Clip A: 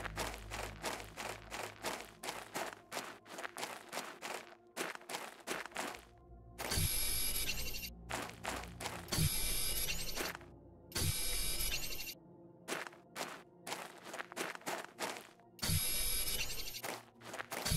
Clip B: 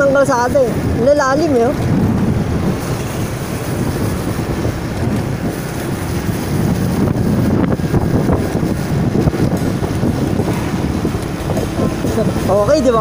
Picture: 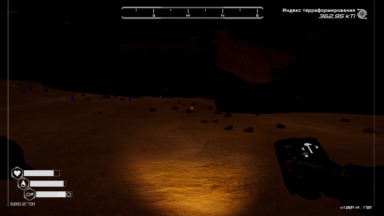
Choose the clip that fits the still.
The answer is A